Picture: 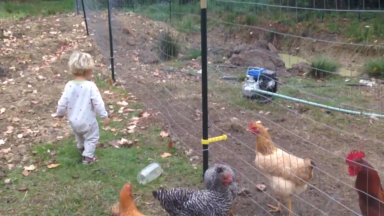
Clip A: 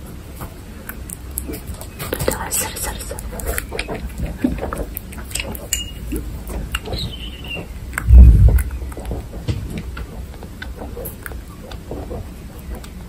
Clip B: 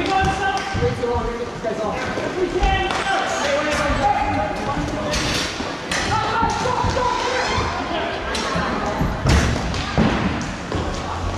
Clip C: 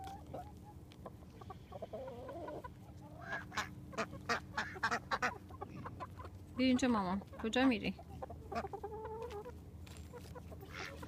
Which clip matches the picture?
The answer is C